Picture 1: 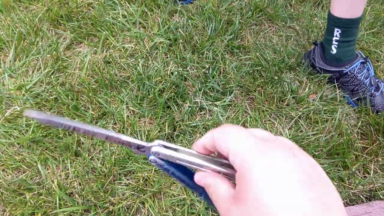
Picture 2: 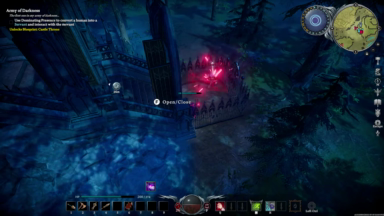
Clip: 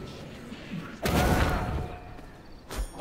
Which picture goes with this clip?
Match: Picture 2